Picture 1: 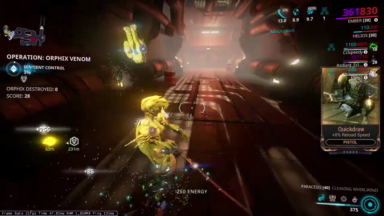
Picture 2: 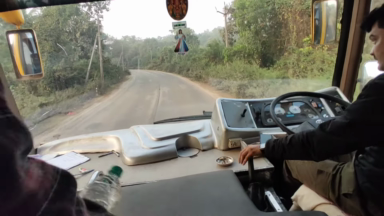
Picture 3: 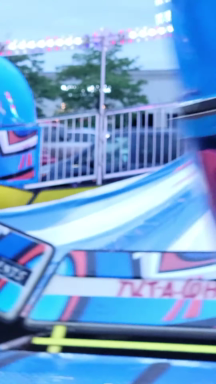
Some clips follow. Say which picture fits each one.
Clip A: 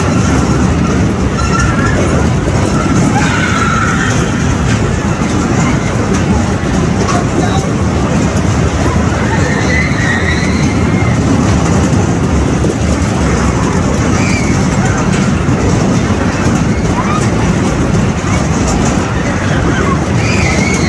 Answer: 3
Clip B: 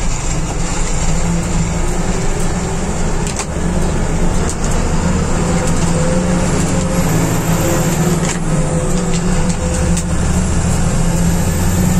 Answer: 2